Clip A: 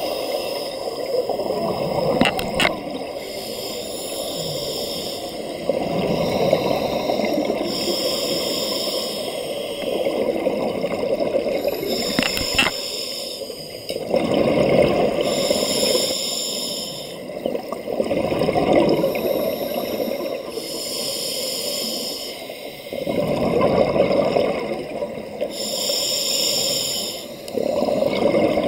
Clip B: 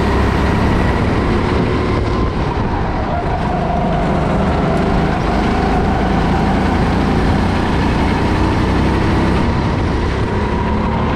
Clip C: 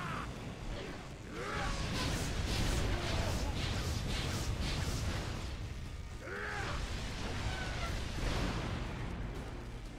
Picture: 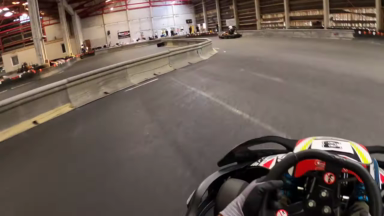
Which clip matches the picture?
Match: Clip B